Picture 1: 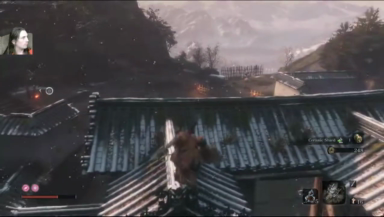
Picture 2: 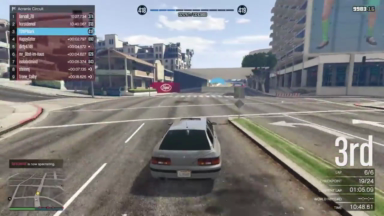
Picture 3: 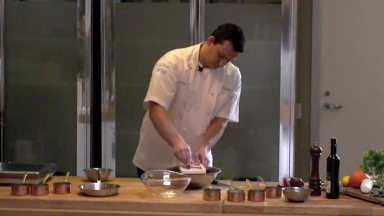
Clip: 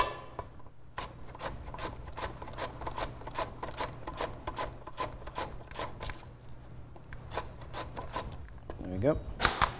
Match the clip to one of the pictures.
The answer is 3